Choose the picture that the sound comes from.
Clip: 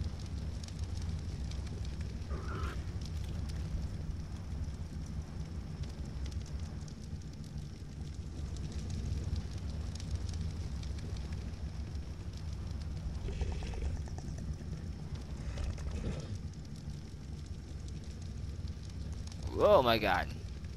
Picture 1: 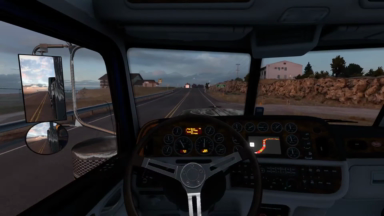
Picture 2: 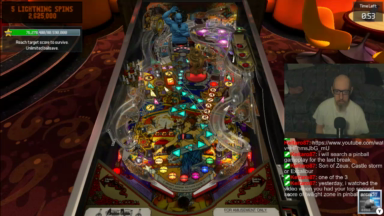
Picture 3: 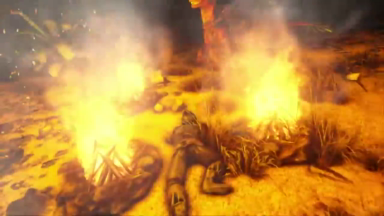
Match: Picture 3